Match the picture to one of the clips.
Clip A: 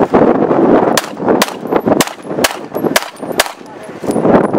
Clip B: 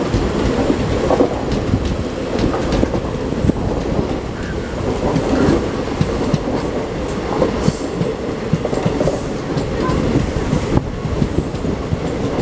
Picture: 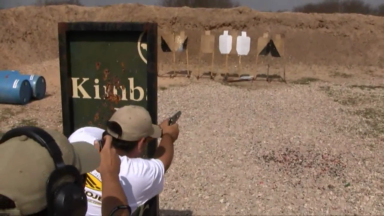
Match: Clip A